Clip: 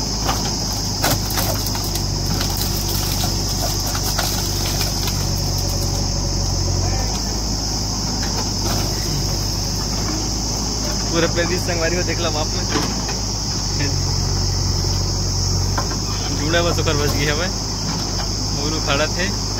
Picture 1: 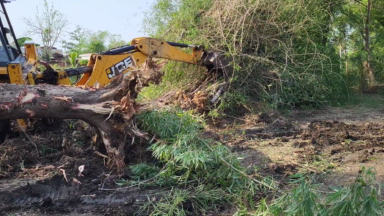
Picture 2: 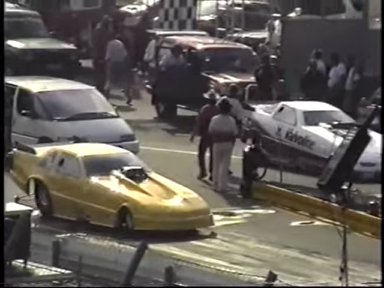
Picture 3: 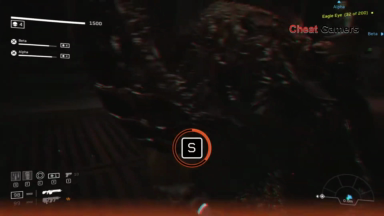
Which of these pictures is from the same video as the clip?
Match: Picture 1